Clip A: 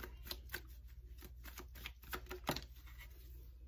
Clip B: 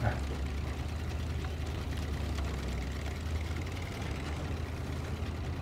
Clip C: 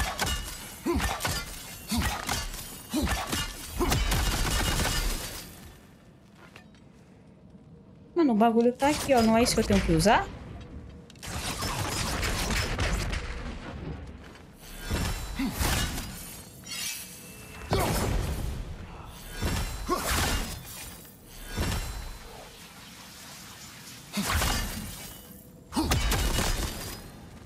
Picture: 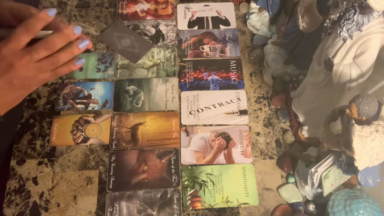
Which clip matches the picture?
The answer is A